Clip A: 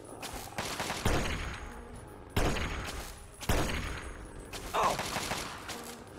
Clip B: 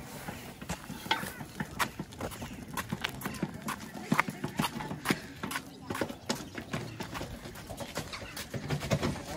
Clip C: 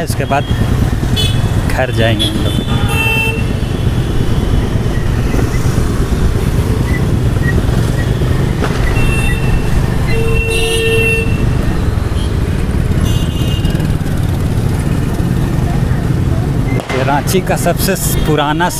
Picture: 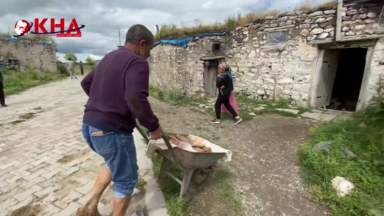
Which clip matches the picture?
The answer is B